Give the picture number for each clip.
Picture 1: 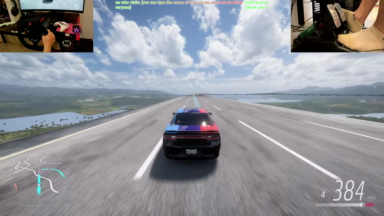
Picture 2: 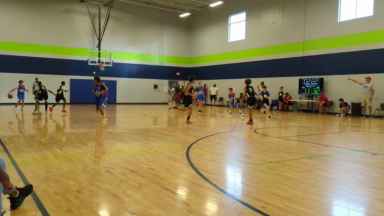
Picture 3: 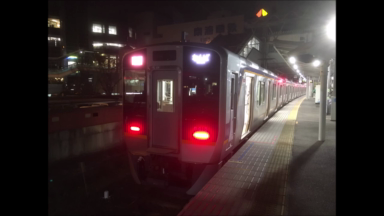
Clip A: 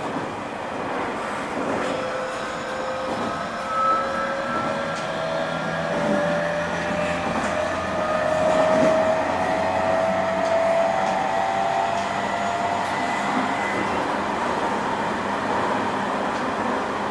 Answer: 3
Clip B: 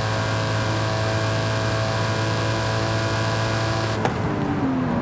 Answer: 1